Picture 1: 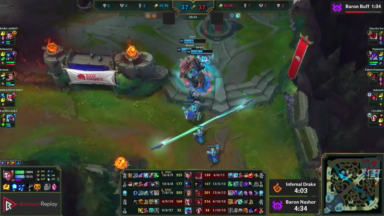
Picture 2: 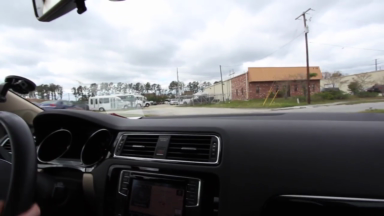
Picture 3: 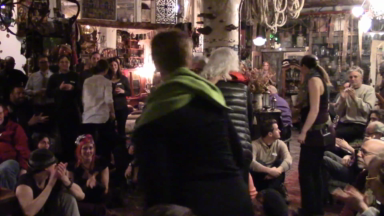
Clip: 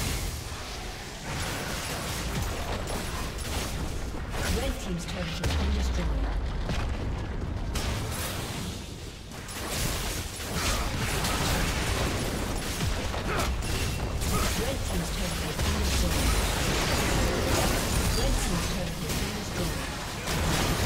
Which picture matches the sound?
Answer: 1